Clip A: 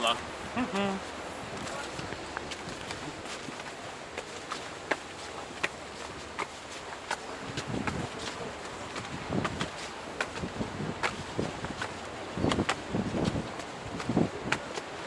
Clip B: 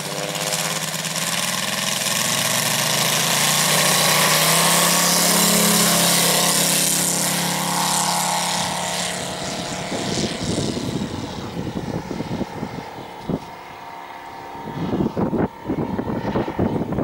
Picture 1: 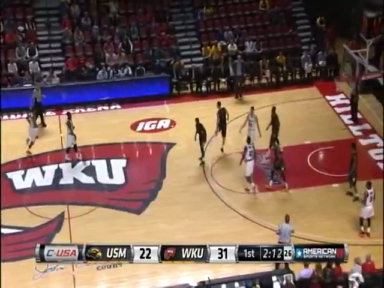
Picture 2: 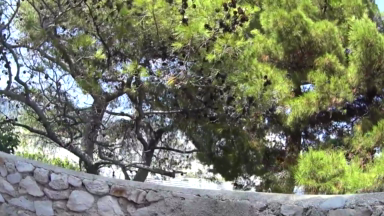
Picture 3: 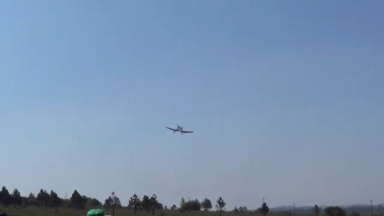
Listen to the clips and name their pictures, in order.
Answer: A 2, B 3